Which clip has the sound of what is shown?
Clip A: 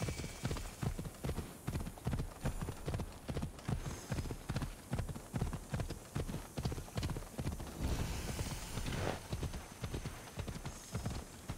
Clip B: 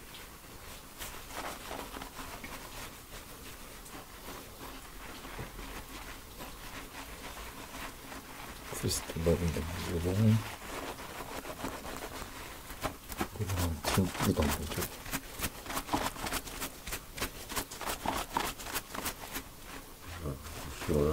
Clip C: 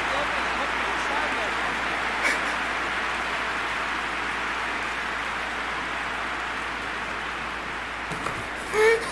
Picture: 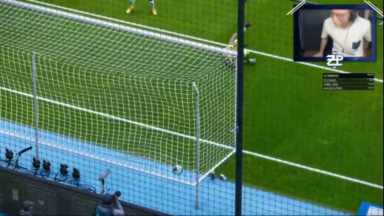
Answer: C